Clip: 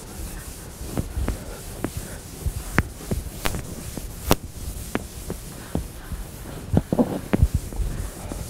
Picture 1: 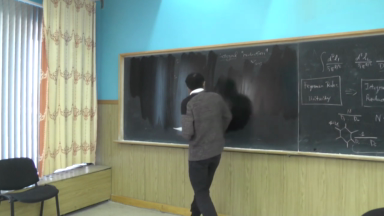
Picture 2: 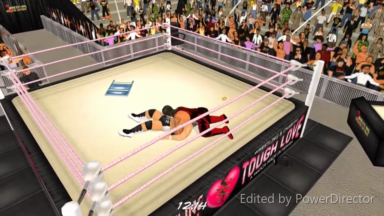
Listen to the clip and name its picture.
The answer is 1